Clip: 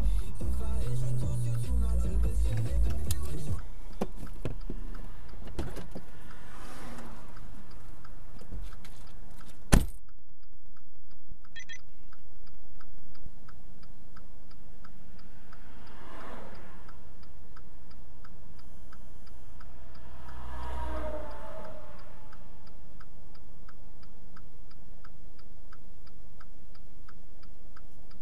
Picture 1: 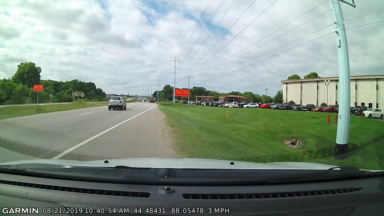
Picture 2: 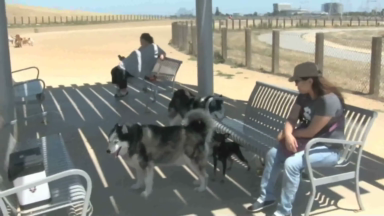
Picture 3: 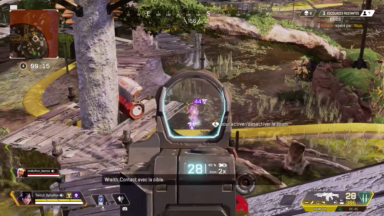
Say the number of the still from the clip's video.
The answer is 1